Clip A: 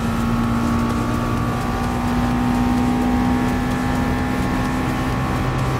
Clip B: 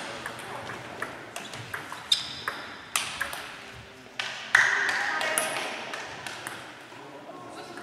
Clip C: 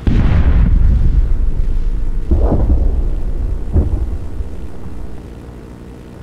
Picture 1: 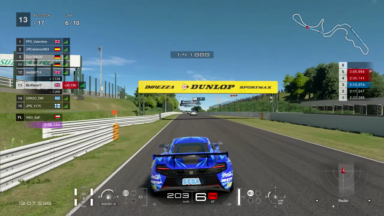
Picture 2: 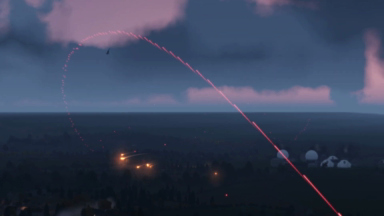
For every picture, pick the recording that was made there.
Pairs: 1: A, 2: C